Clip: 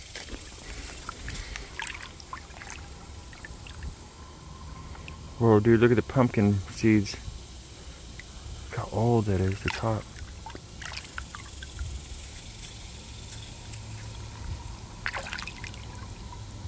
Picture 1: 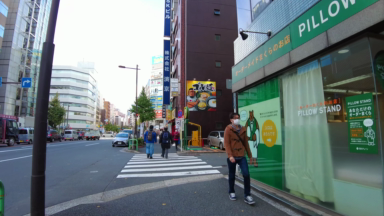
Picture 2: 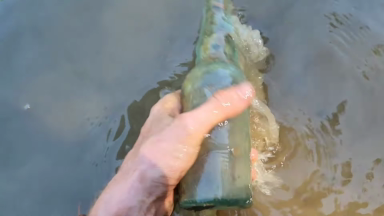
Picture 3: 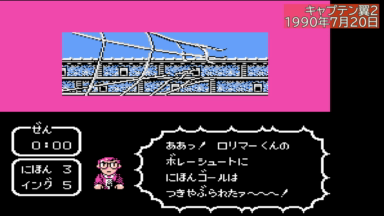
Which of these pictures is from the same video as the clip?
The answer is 2